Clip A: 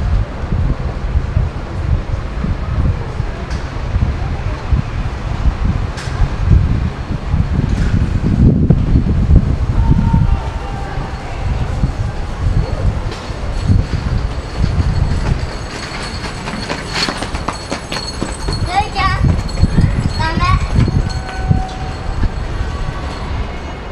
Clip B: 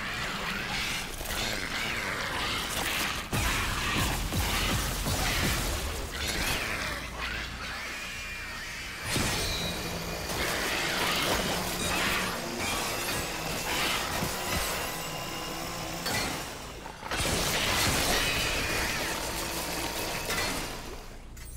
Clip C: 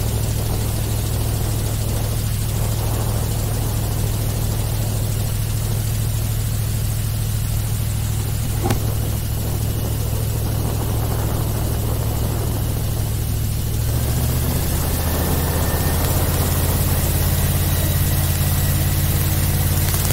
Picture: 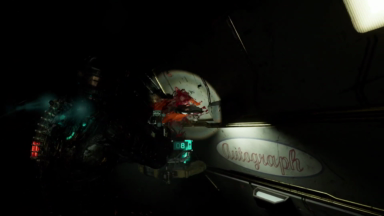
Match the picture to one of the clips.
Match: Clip B